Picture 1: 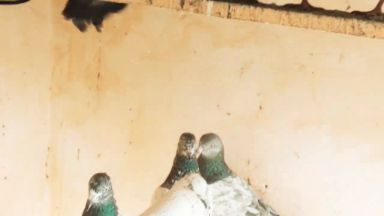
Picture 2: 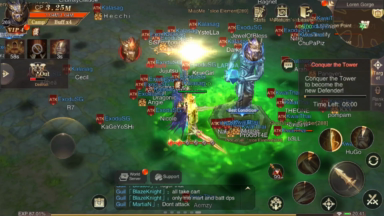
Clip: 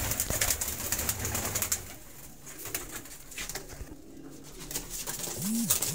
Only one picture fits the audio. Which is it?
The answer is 1